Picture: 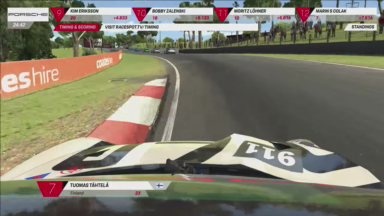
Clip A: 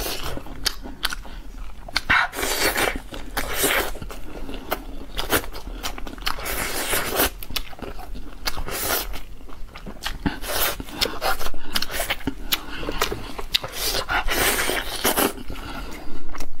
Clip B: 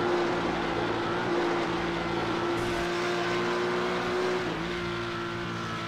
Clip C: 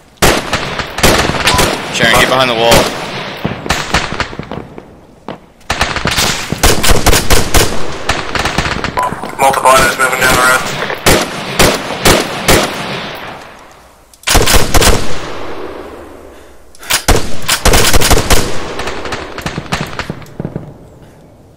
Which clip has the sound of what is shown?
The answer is B